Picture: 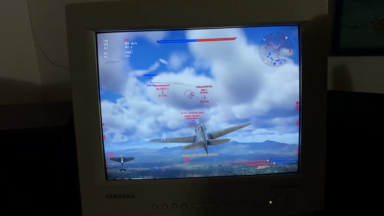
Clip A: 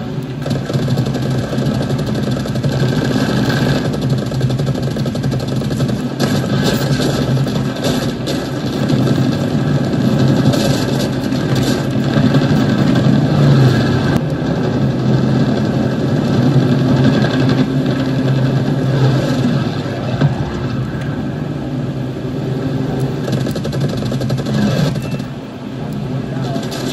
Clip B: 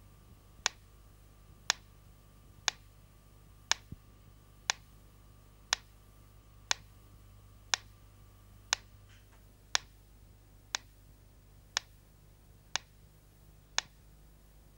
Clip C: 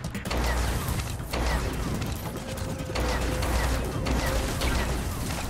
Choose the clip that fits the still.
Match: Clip A